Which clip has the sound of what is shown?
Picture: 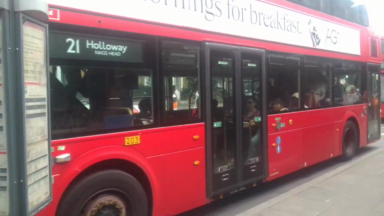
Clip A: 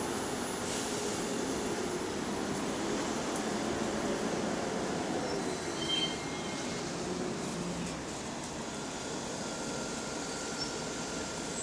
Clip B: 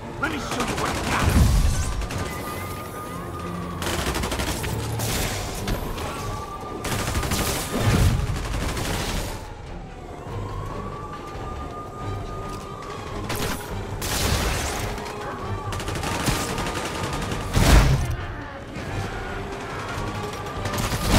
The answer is A